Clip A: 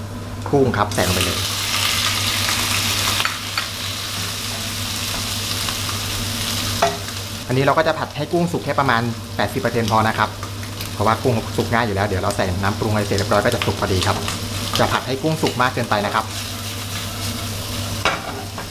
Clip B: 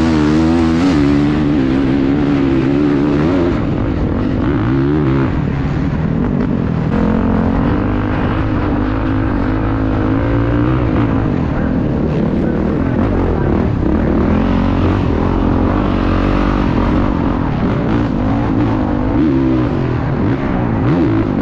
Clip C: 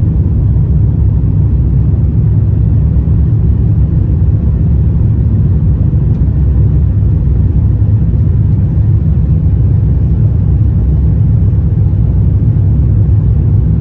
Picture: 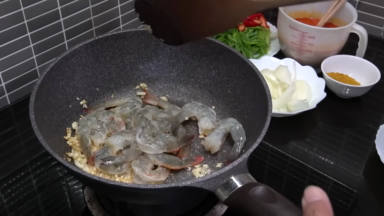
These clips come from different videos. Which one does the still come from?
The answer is A